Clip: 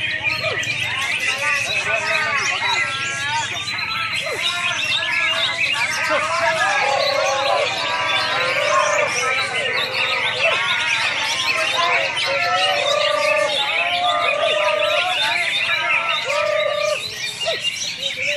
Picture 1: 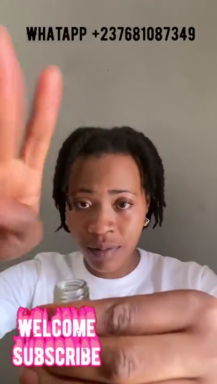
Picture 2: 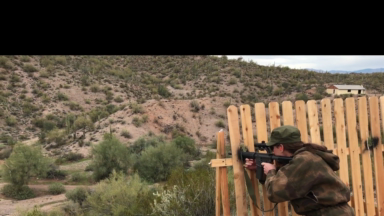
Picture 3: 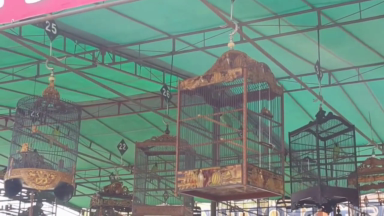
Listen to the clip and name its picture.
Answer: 3